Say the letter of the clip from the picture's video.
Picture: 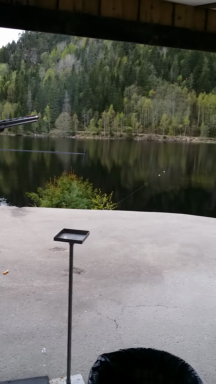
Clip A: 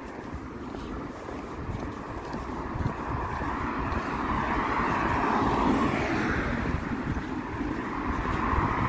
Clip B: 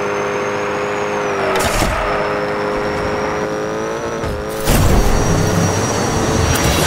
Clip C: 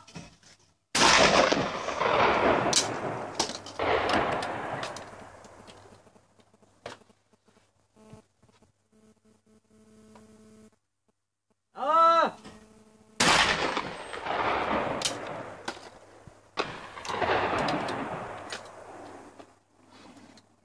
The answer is C